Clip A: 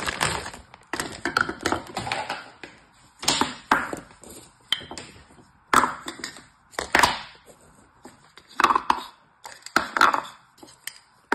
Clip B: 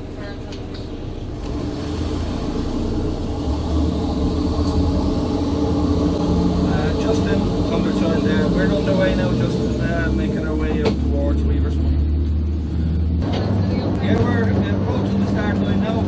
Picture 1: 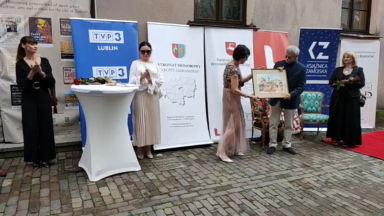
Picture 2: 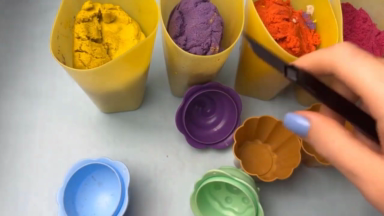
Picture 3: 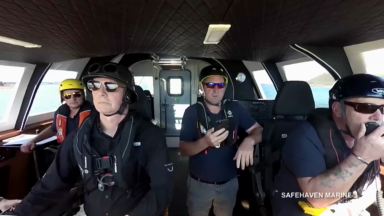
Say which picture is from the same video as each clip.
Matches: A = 2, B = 3